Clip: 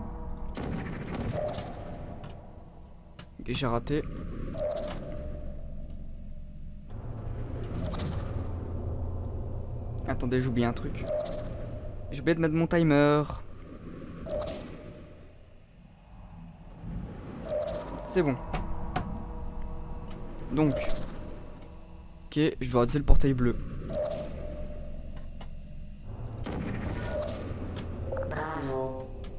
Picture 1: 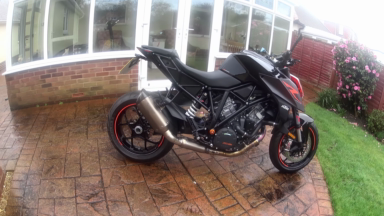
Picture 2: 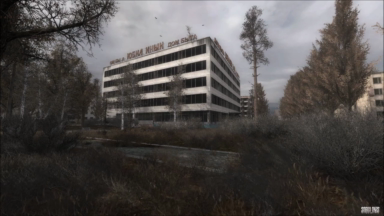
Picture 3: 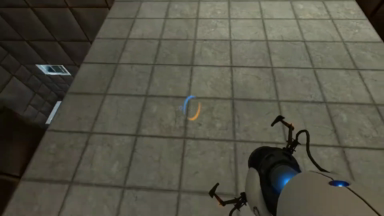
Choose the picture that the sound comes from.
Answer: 3